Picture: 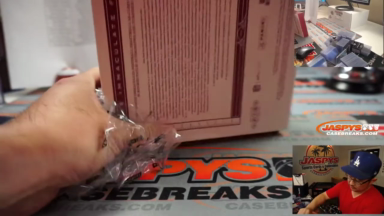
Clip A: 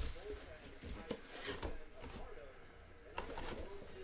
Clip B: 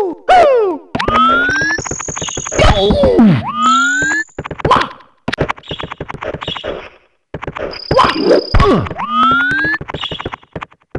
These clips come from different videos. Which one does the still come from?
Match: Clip A